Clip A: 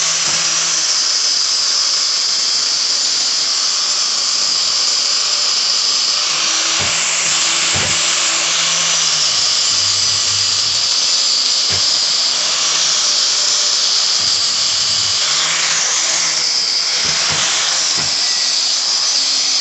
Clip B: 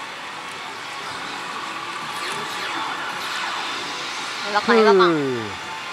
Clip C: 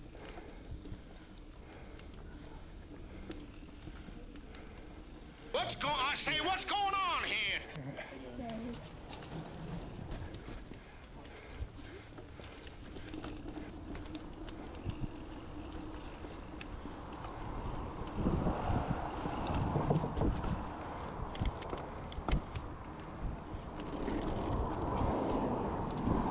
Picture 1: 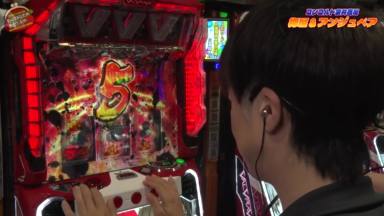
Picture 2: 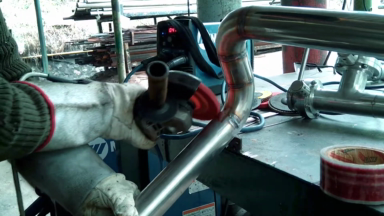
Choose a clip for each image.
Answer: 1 B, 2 A